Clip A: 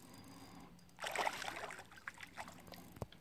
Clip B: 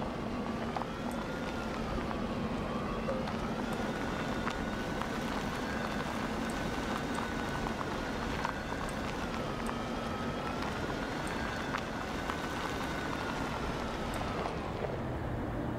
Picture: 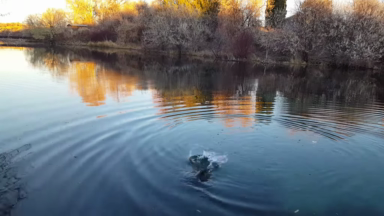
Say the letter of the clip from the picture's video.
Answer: A